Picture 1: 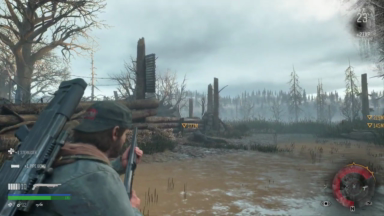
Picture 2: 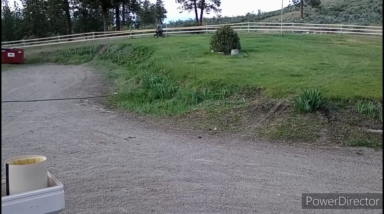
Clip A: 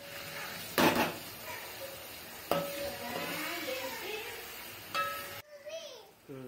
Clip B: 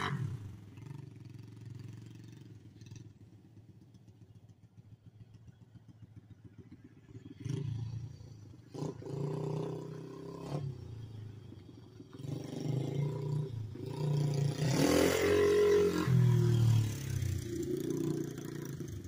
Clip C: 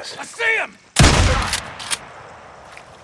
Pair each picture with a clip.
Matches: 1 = C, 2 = B